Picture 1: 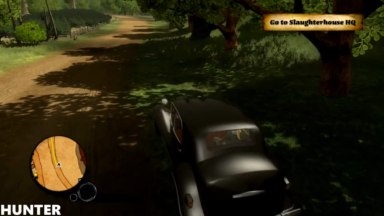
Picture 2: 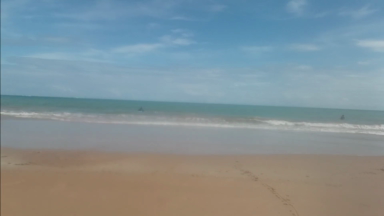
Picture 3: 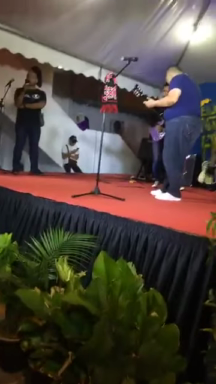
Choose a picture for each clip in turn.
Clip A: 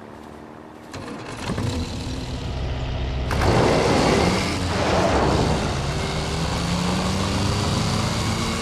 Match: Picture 1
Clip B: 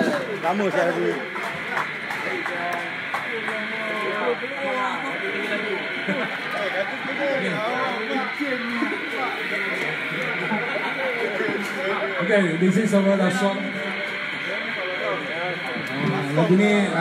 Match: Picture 3